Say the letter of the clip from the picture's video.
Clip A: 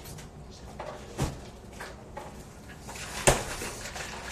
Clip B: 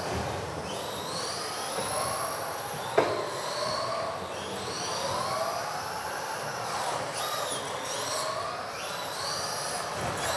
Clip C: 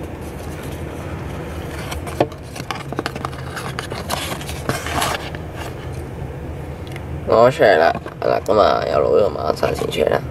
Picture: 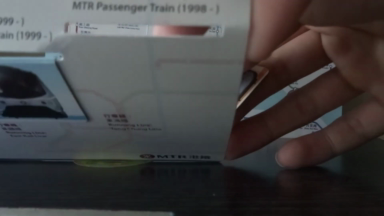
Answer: C